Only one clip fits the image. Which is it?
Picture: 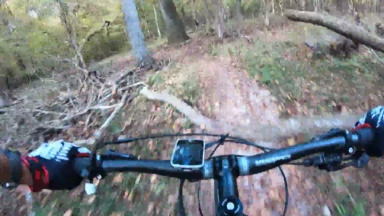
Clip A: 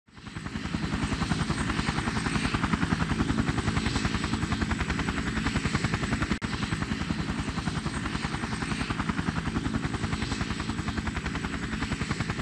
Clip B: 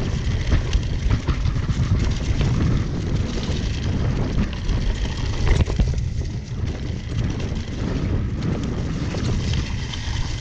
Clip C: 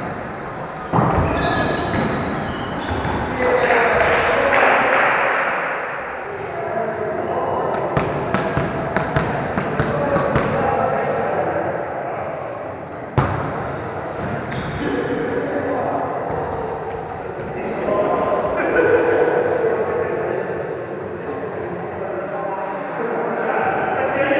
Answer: B